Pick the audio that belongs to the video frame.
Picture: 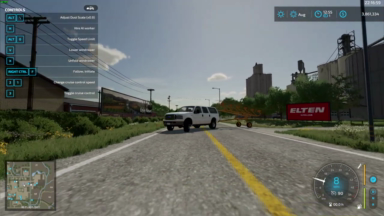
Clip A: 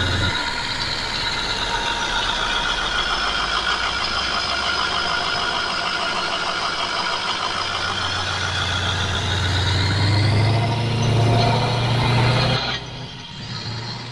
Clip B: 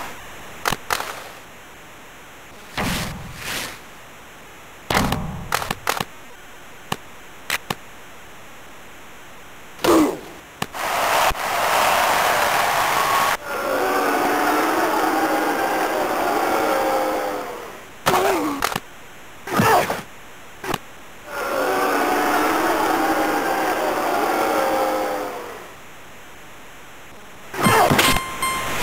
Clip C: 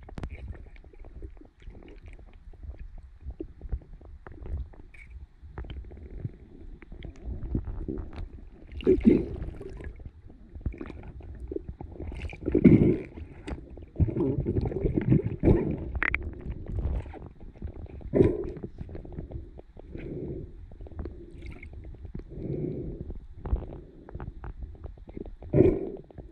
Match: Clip A